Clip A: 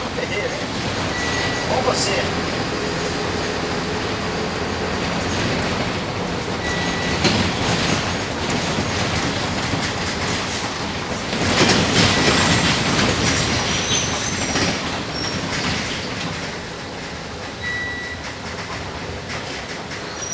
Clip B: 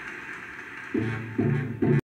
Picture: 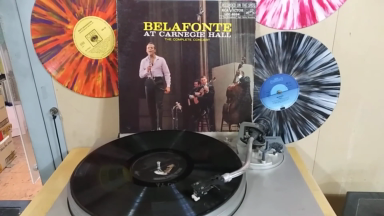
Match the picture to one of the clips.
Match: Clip B